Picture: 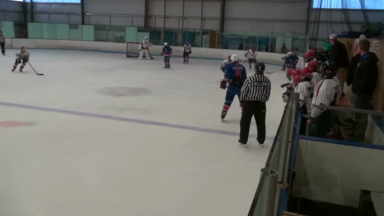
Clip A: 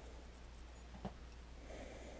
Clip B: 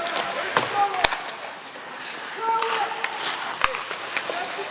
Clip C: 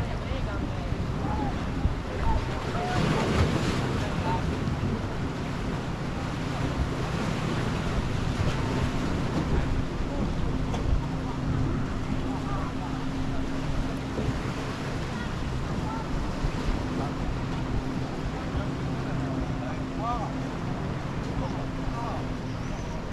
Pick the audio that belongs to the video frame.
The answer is B